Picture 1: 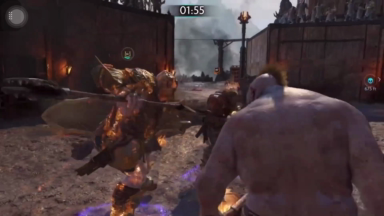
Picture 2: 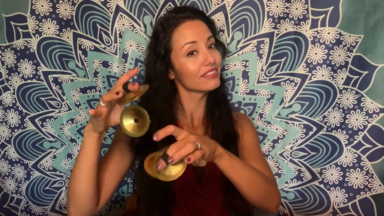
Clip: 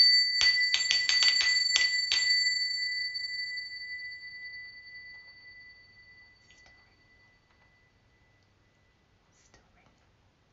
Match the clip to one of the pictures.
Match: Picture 2